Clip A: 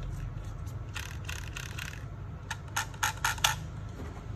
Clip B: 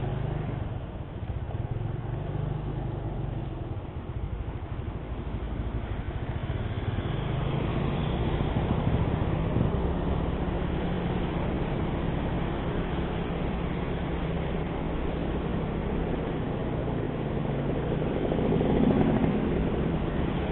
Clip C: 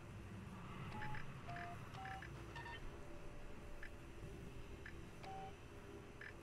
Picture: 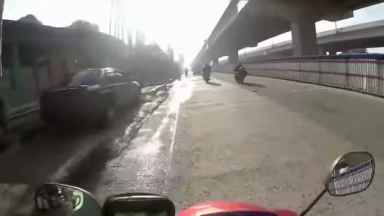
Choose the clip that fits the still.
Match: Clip B